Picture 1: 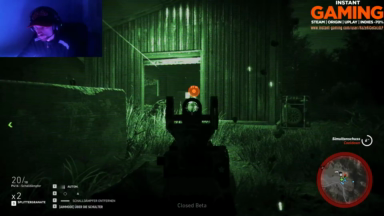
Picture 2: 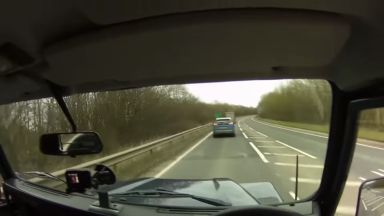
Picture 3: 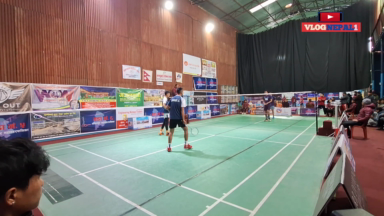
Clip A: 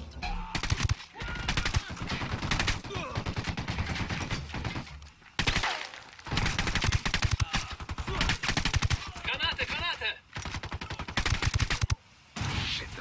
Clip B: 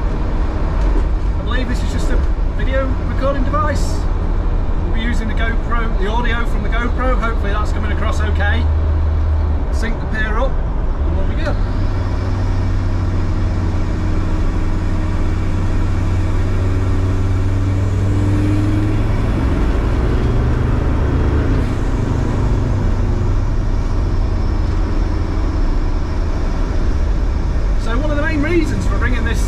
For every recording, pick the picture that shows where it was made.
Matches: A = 1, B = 2